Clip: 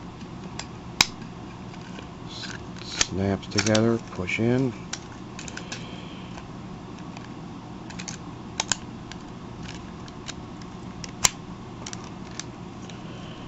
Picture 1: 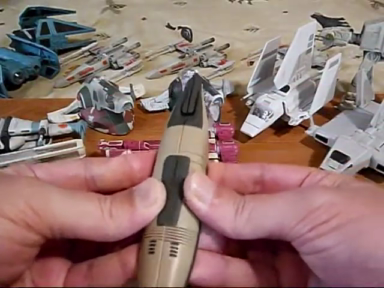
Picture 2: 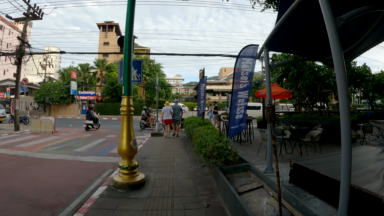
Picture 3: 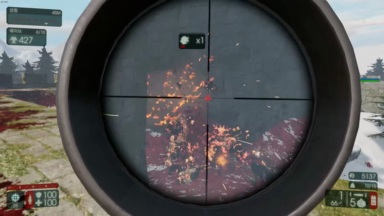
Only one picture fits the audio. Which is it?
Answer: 1